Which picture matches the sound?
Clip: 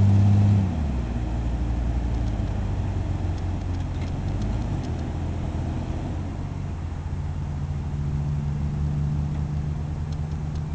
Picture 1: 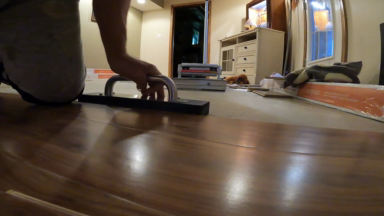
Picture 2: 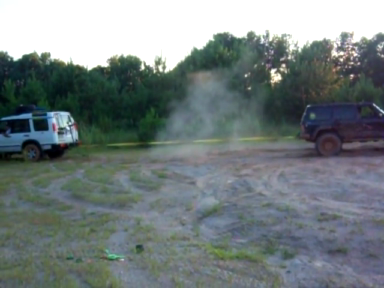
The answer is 2